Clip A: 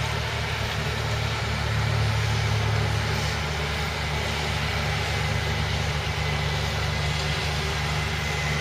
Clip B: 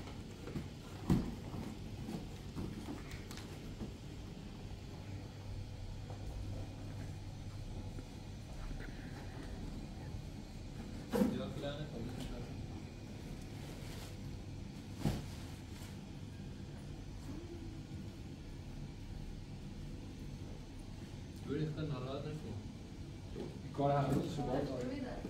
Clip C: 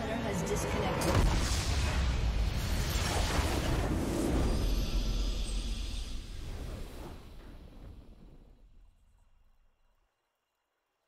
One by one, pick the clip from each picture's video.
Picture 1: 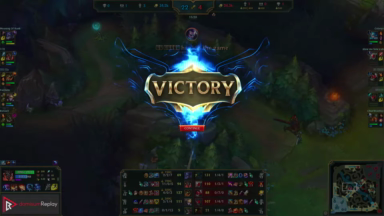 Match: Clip C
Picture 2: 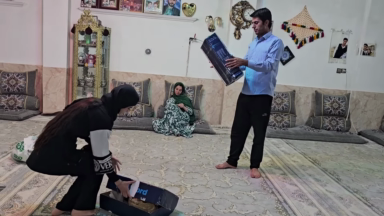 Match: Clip B